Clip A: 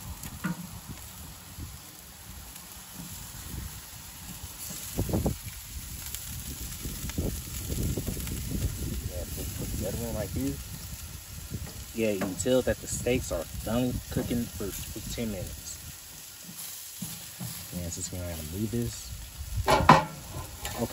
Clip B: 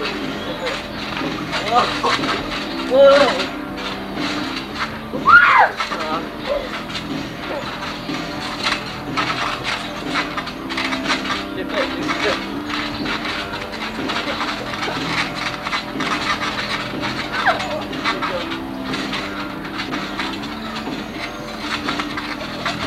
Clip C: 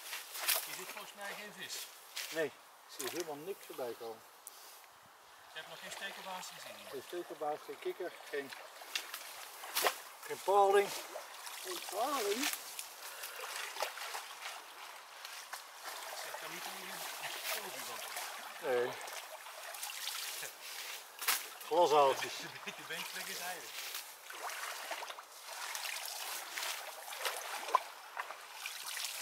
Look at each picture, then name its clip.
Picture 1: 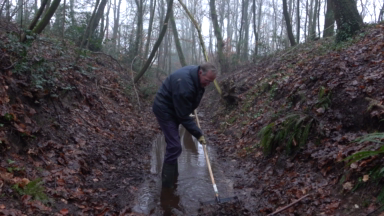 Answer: C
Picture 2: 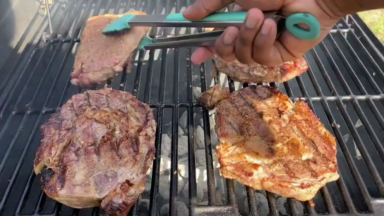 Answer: A